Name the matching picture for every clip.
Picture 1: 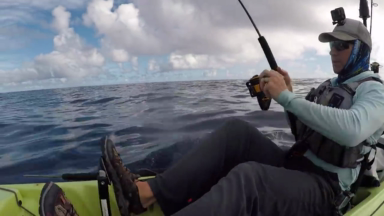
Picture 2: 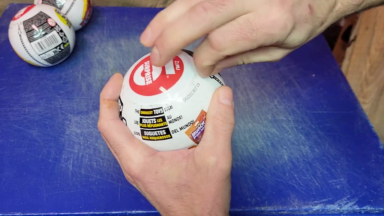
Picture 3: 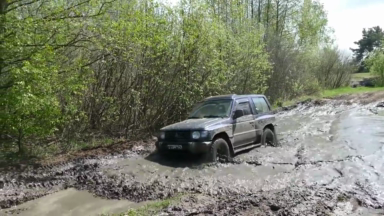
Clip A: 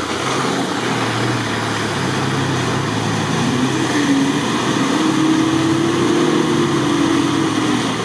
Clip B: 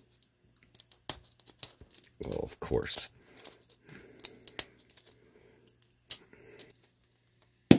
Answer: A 3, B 2